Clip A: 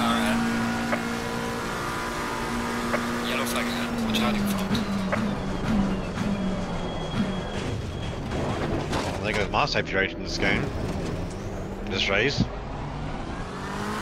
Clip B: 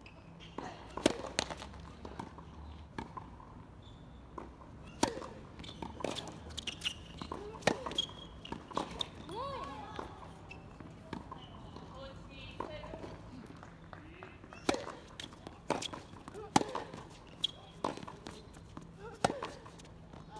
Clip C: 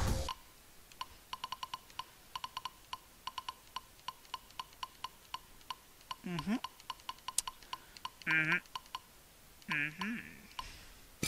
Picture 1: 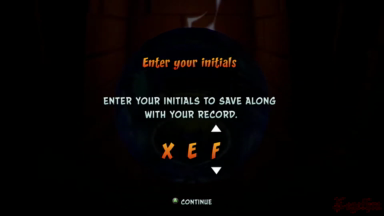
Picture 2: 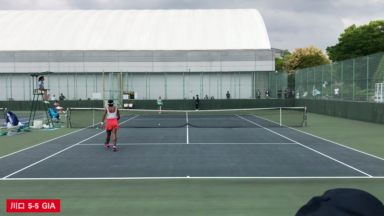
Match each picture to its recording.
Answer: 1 C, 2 B